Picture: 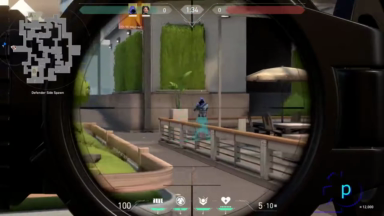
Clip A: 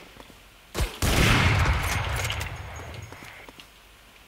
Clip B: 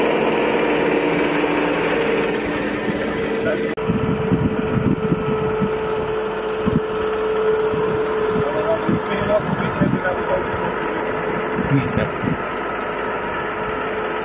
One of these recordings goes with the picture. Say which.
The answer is A